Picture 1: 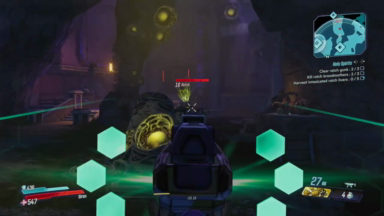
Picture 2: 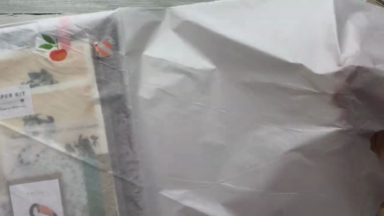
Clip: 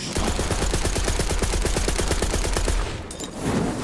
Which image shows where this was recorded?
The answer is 1